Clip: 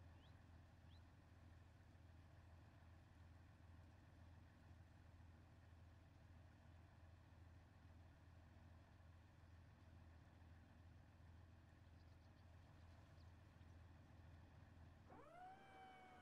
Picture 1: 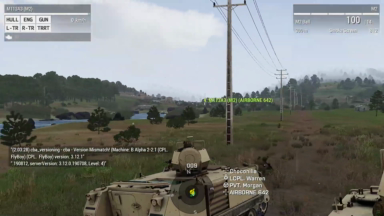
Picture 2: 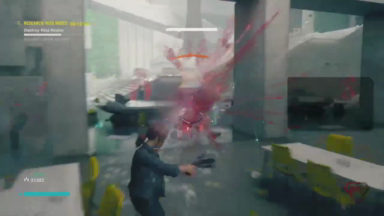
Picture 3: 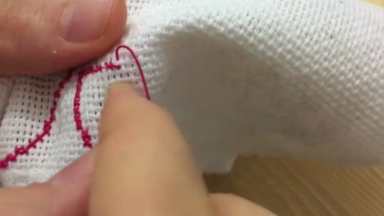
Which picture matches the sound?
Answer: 1